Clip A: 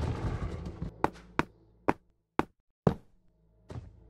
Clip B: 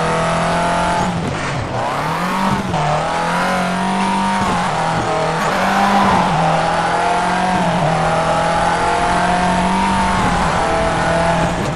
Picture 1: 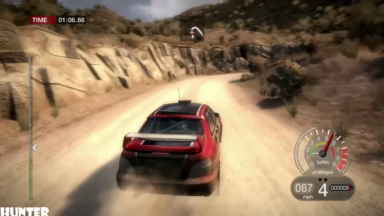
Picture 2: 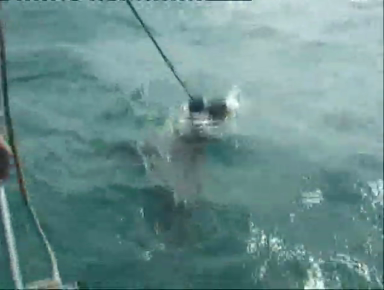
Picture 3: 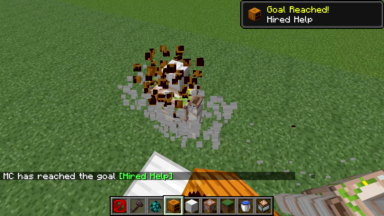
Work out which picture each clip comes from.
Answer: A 3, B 1